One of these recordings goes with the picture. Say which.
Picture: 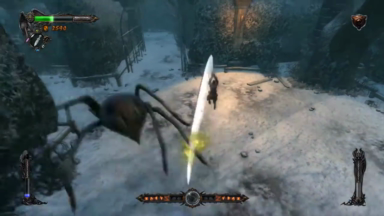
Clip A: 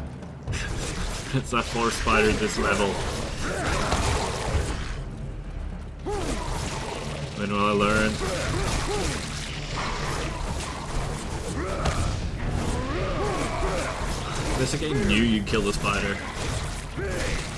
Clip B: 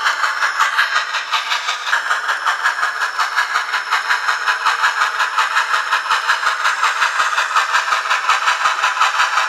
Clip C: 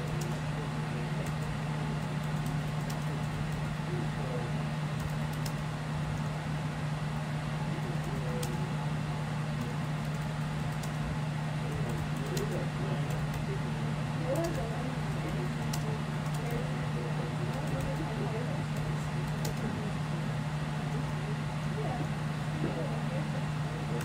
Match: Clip A